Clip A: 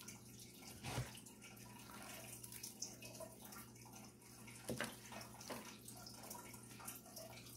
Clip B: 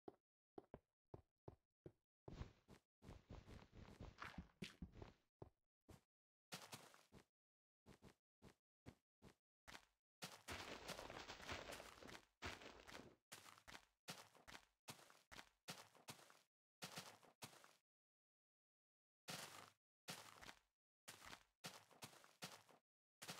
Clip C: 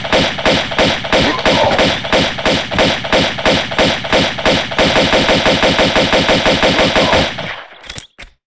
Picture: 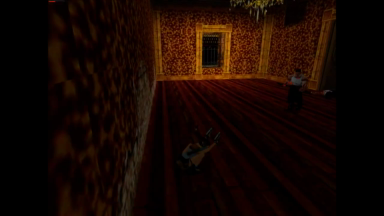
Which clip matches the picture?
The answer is C